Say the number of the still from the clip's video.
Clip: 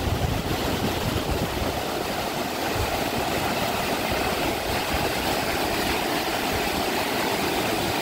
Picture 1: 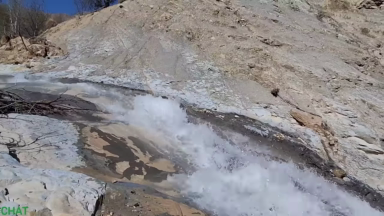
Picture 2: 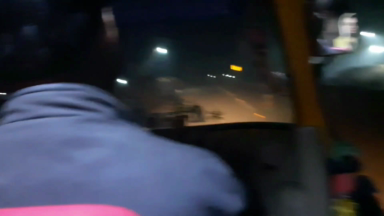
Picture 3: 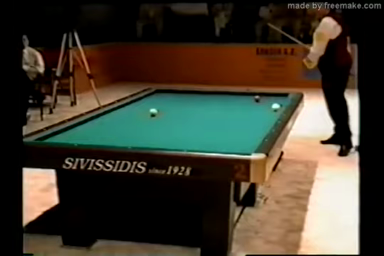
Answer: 1